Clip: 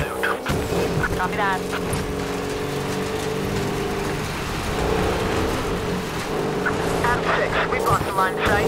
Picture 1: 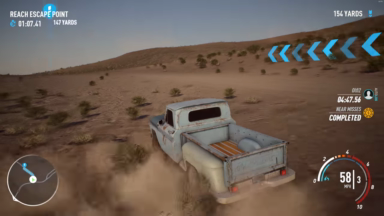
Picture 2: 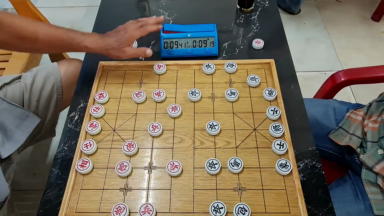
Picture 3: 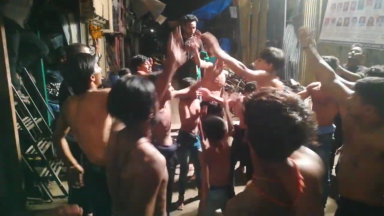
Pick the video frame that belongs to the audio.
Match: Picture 1